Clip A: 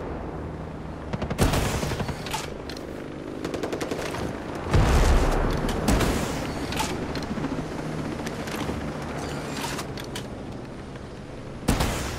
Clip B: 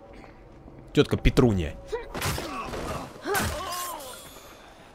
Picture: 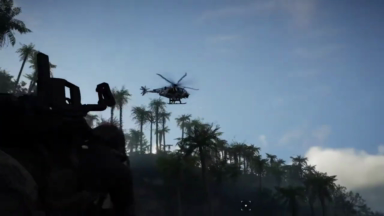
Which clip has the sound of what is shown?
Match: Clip A